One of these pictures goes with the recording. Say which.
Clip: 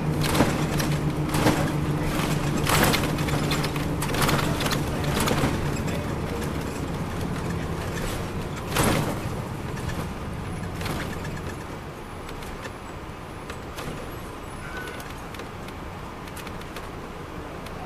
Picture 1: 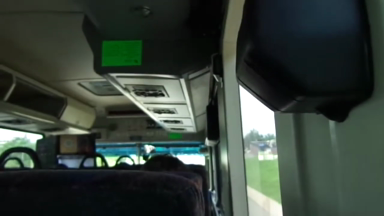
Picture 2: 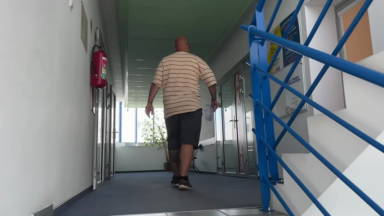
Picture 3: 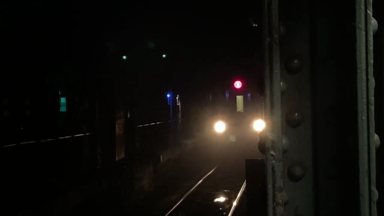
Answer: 1